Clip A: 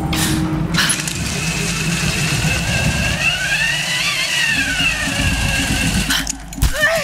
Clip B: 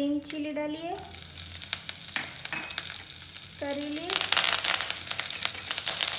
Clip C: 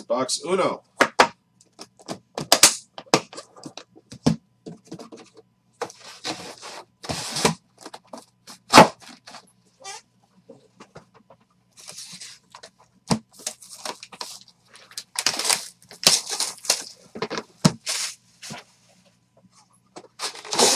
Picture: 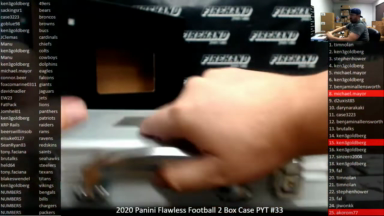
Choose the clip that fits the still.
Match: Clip C